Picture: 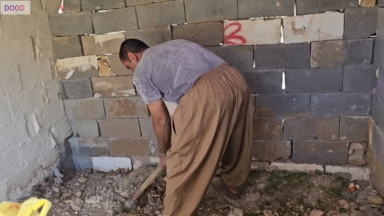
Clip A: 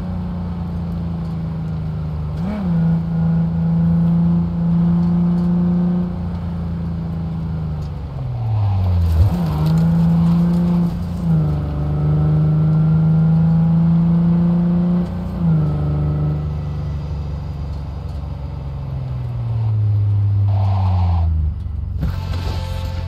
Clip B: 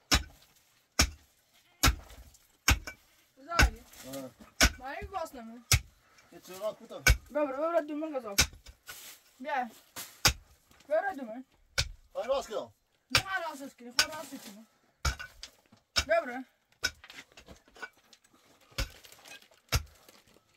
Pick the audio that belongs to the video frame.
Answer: B